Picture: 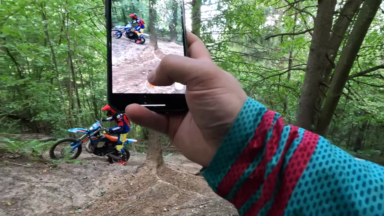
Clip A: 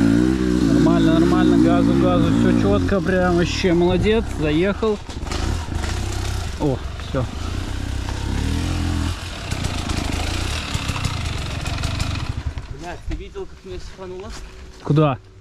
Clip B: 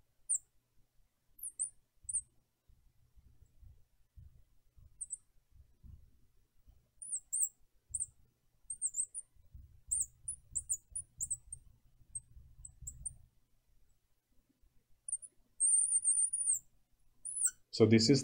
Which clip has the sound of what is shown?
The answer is A